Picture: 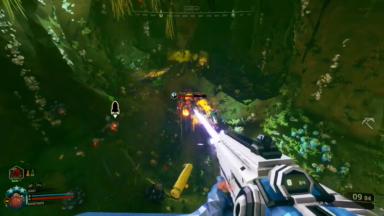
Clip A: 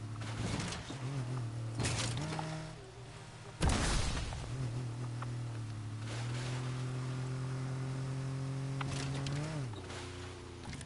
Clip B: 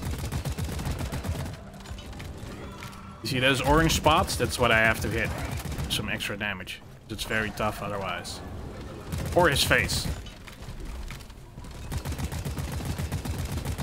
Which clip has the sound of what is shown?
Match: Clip B